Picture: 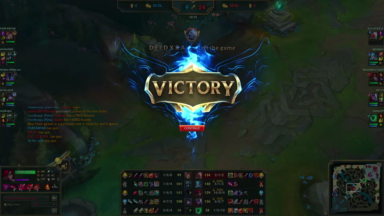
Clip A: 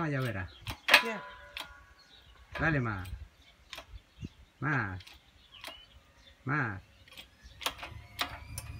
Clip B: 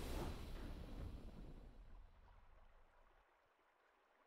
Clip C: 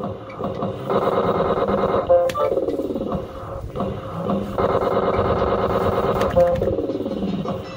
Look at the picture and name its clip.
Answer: B